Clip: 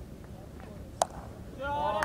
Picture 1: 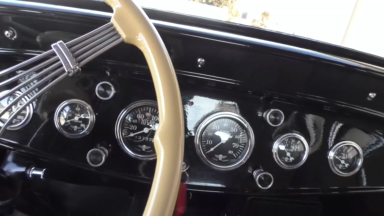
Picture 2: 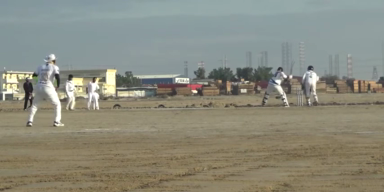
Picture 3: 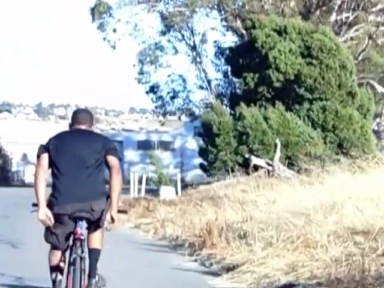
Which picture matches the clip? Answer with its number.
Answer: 2